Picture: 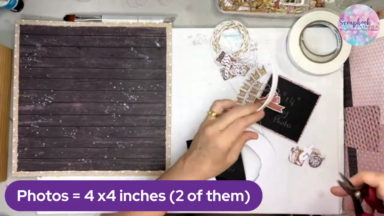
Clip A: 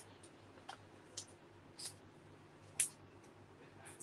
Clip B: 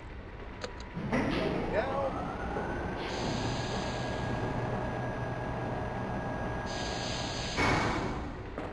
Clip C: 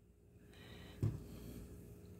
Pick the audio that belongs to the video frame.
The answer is A